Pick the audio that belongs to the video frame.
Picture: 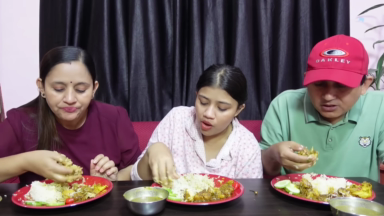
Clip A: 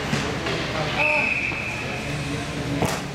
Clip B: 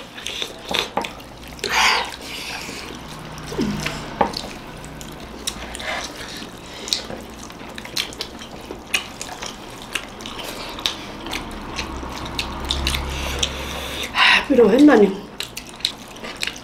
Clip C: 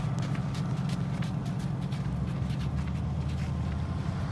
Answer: B